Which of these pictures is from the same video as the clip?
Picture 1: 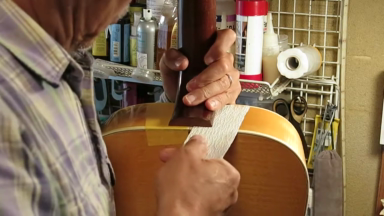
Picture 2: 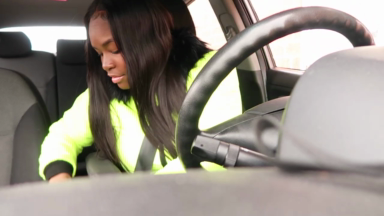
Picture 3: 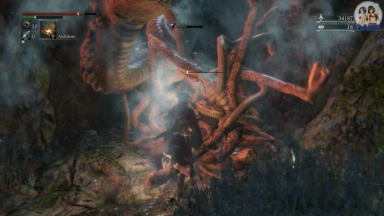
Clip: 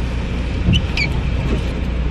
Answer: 2